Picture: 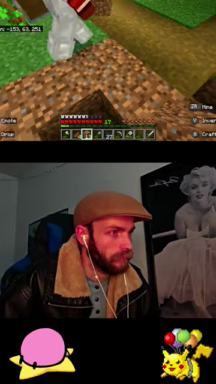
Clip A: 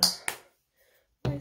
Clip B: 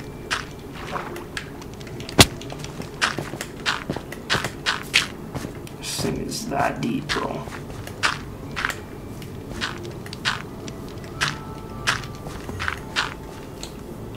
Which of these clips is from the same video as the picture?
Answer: B